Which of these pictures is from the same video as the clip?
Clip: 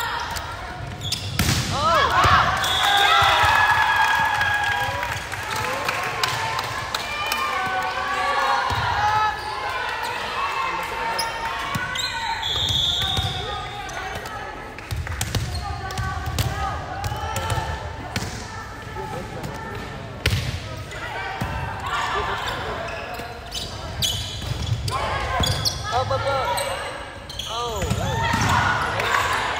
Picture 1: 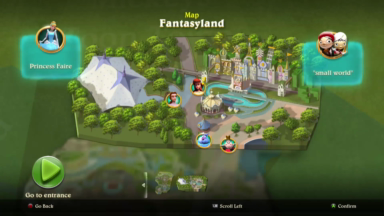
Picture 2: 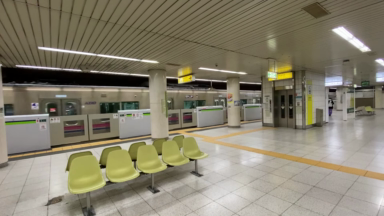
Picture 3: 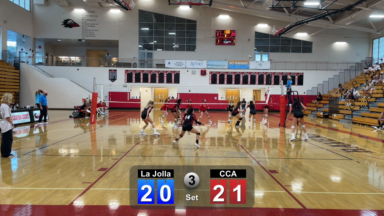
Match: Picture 3